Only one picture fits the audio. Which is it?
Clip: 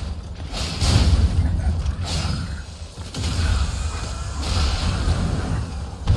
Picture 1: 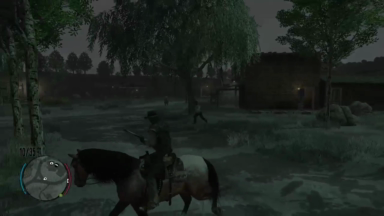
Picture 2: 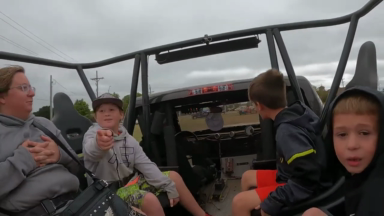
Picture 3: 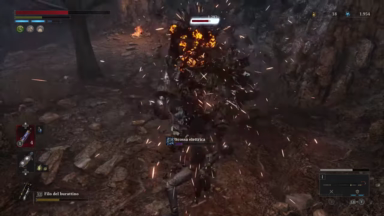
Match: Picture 3